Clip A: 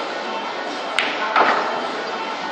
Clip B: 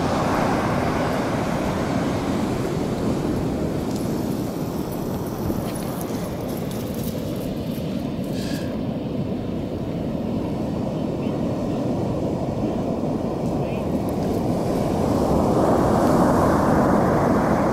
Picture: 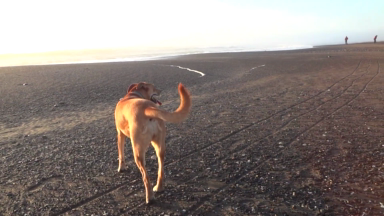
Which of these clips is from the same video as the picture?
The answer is B